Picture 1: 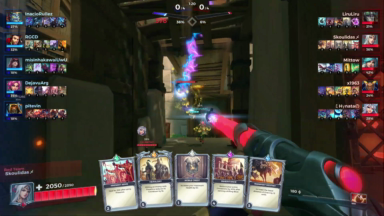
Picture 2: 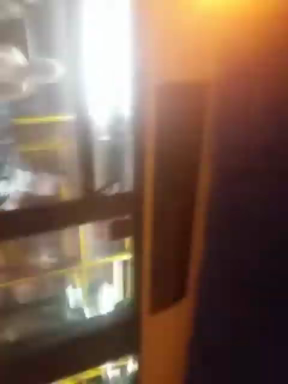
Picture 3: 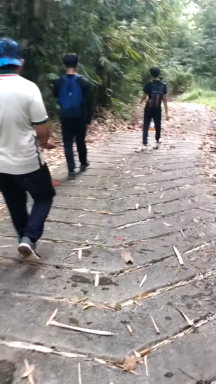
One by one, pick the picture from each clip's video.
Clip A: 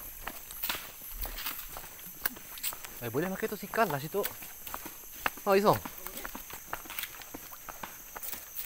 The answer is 3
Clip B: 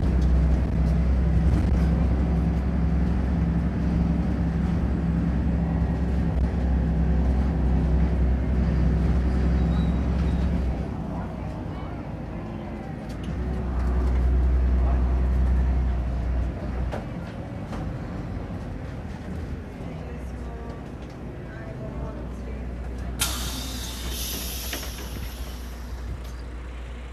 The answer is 2